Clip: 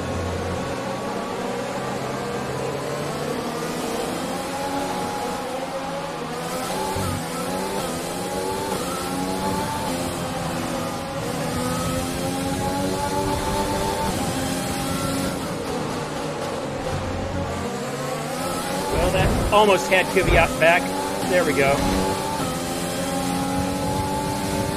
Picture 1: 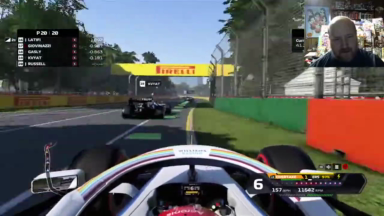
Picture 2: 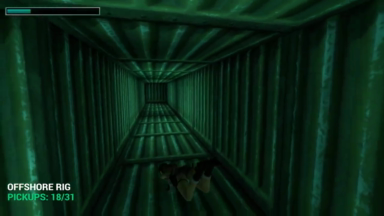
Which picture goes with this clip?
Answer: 1